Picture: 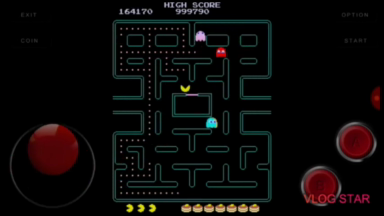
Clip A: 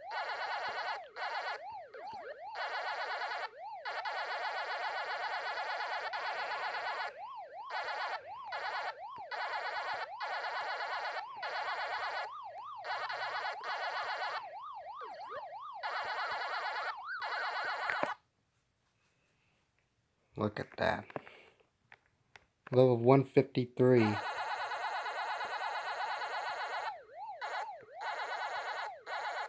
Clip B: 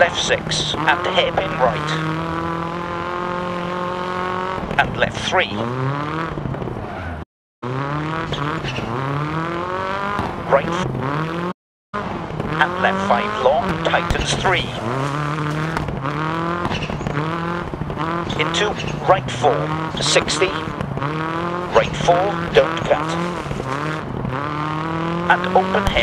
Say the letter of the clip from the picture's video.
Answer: A